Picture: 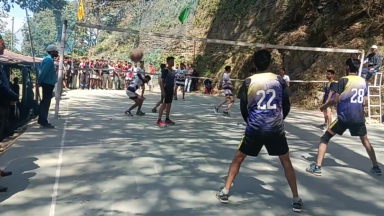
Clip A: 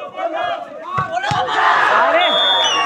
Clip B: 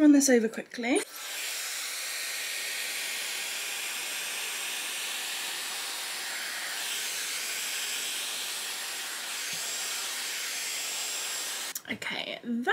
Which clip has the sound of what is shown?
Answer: A